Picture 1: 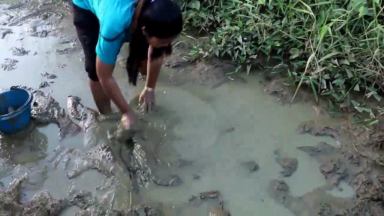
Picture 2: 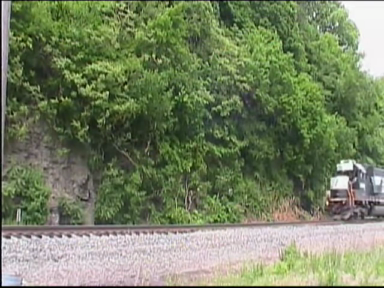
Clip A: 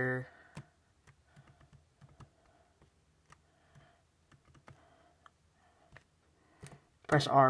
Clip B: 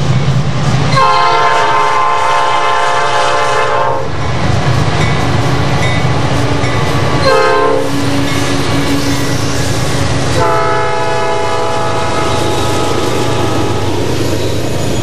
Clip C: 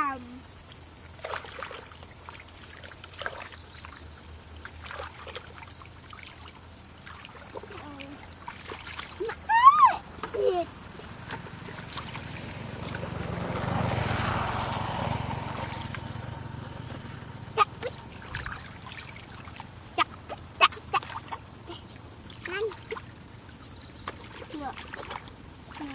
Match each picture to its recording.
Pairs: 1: C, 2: B